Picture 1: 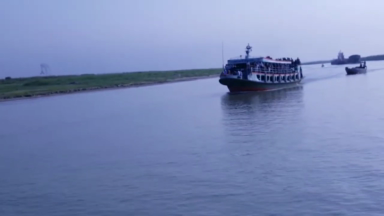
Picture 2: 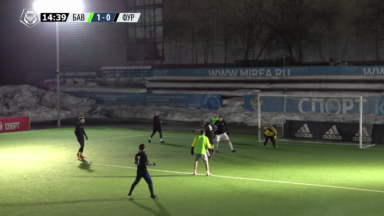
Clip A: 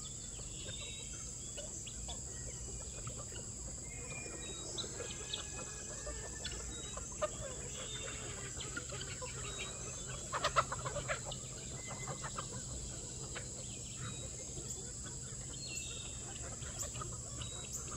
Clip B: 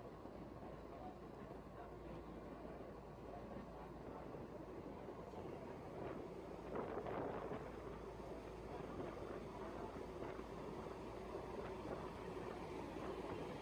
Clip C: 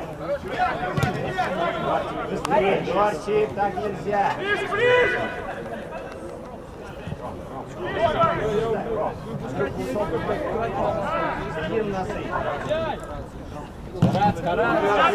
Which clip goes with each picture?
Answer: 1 B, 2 C